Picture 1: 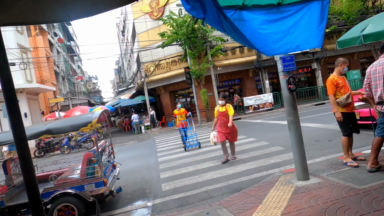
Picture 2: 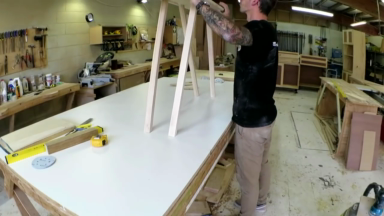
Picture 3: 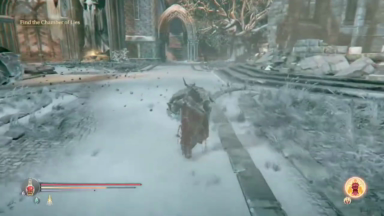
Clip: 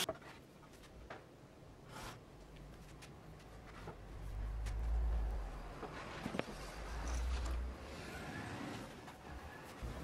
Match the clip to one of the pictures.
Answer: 2